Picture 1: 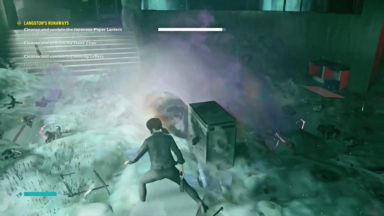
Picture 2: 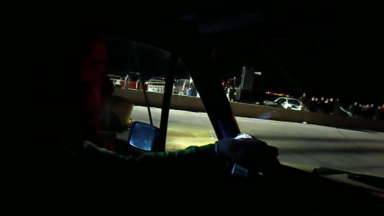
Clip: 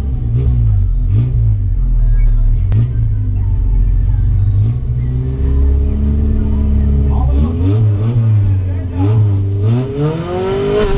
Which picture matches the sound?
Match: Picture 2